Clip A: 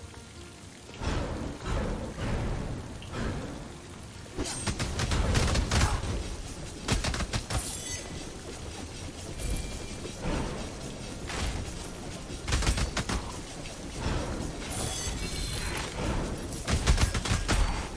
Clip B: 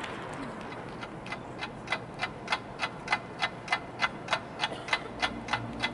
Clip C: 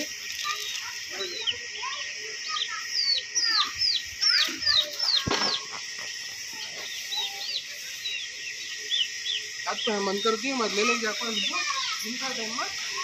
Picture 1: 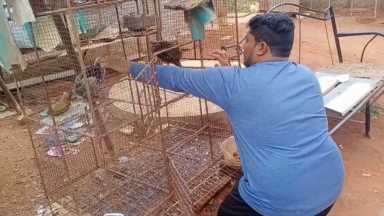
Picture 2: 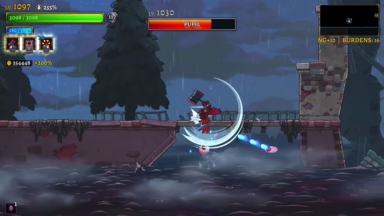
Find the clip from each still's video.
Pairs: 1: C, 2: A